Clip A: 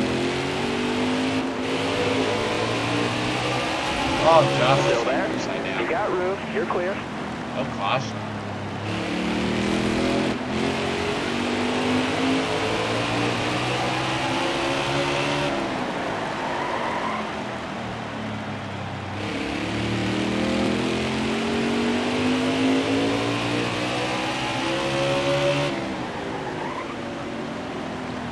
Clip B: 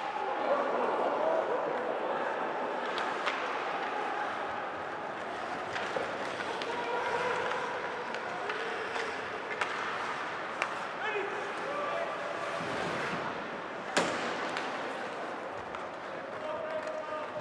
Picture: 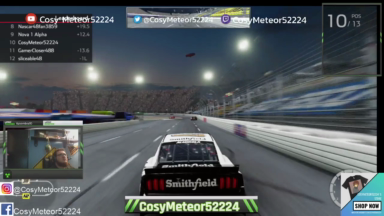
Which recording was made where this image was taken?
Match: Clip A